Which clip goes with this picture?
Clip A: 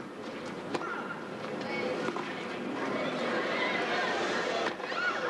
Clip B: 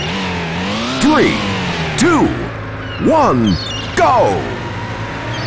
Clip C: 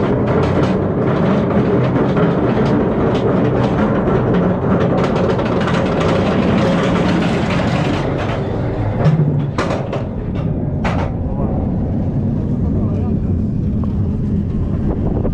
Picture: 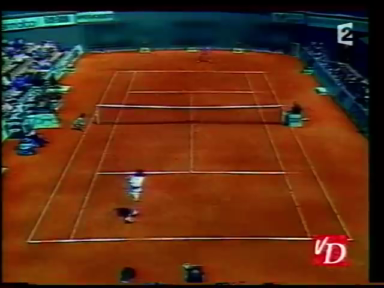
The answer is A